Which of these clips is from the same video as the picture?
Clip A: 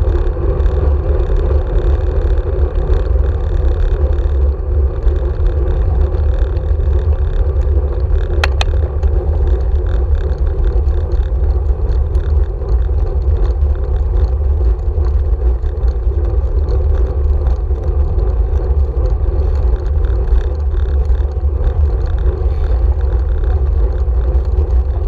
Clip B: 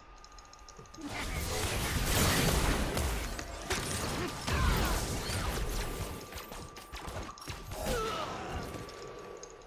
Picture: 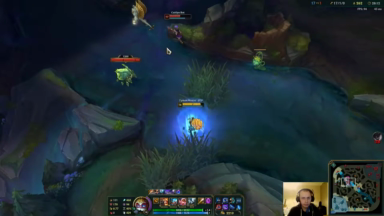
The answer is B